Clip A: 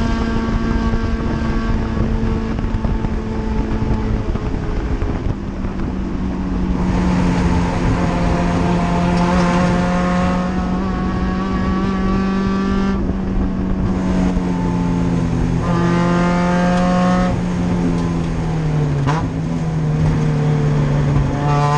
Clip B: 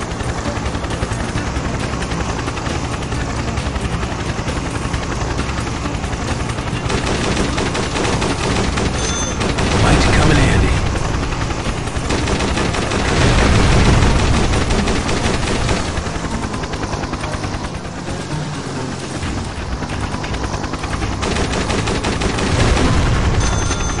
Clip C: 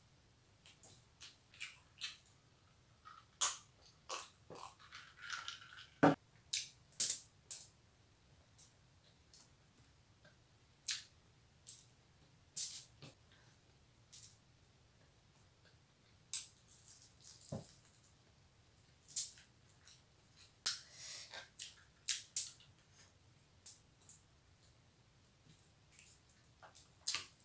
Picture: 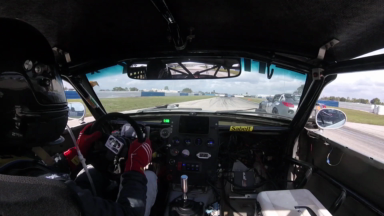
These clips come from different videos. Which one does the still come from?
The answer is A